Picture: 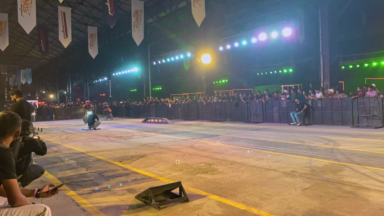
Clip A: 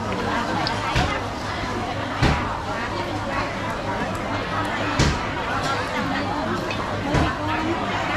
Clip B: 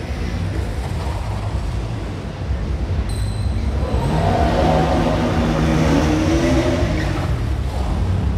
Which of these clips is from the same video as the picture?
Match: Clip B